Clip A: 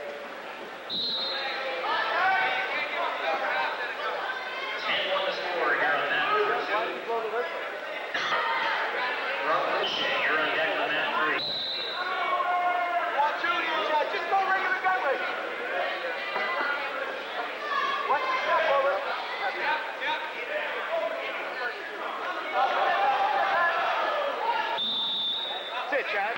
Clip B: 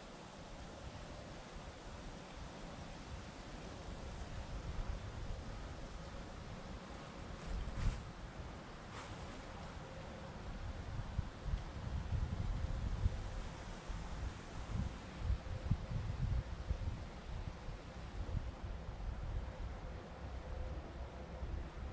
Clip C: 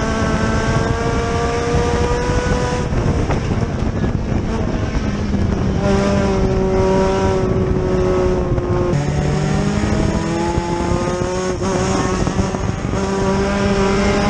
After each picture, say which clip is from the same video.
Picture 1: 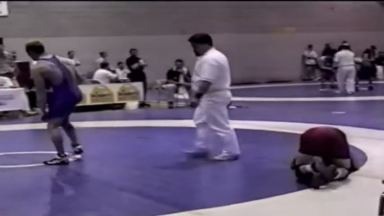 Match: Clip A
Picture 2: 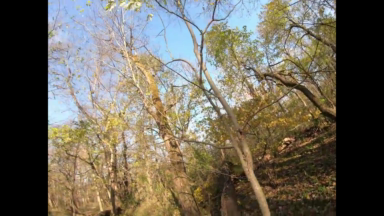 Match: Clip B